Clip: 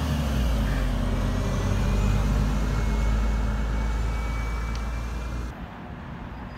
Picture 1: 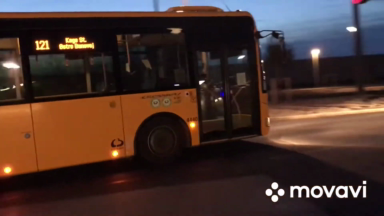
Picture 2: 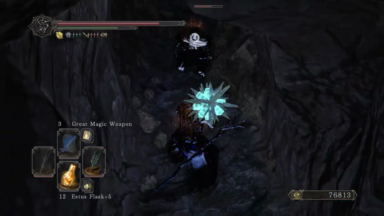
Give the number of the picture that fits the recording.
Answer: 1